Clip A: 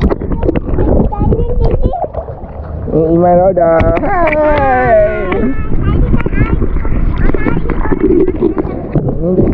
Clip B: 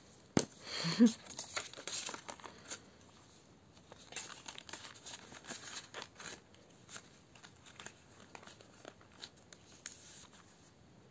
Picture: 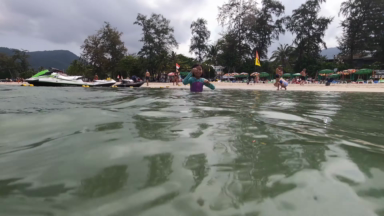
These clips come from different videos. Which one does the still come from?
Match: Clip A